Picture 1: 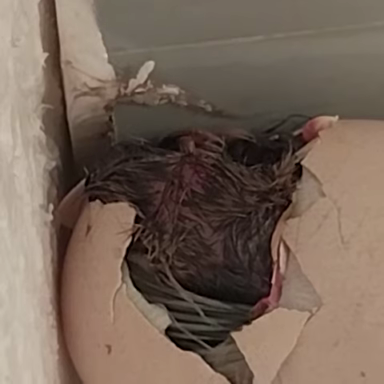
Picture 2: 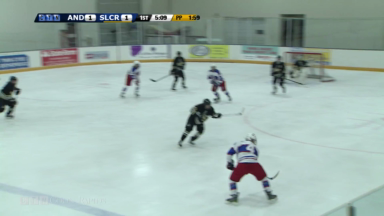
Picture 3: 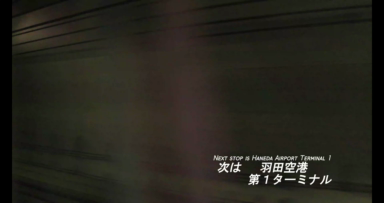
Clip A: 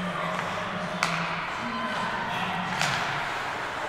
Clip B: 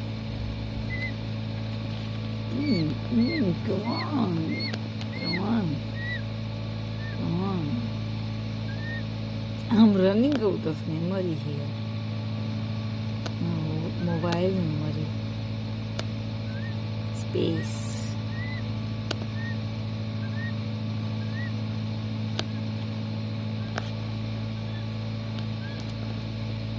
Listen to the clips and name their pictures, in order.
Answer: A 2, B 1